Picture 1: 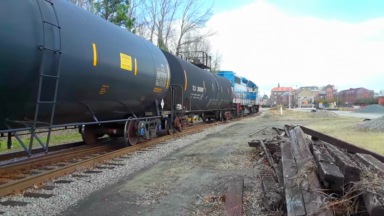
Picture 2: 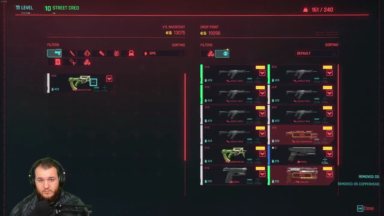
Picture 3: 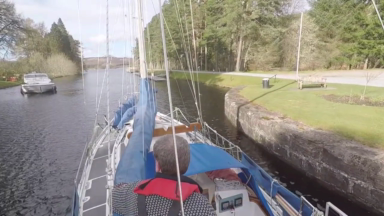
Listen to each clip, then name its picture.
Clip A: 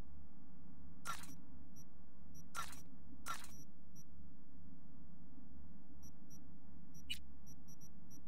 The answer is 2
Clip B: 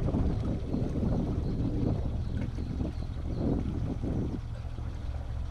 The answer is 3